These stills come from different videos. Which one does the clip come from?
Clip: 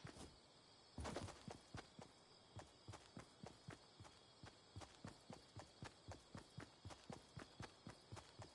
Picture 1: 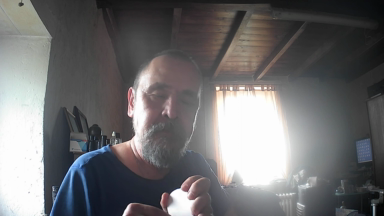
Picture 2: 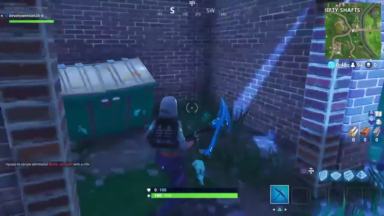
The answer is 2